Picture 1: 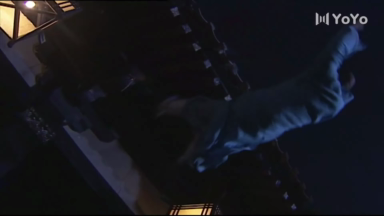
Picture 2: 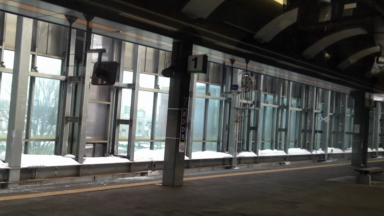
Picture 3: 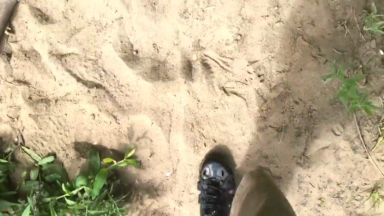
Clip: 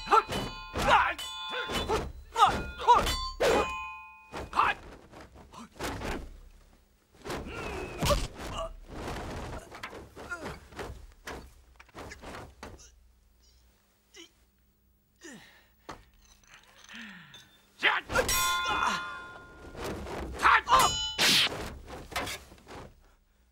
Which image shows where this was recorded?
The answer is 1